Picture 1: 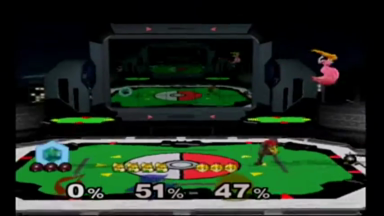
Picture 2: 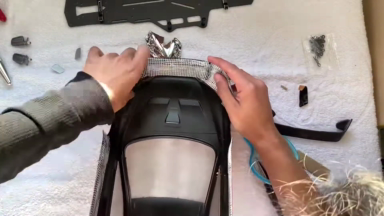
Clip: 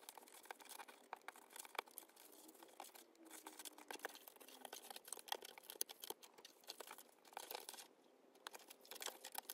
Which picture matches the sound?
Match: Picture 2